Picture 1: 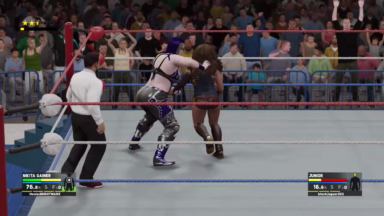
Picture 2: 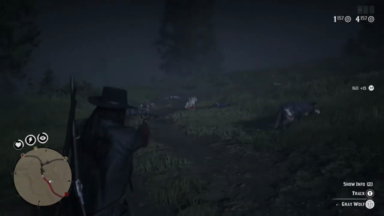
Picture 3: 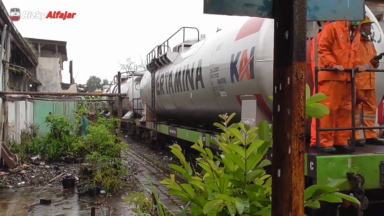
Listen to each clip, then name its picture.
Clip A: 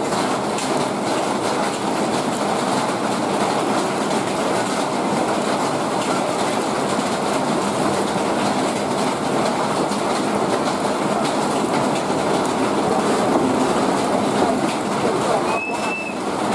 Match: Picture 3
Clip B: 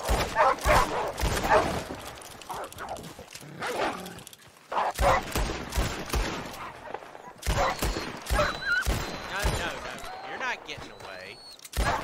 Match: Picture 2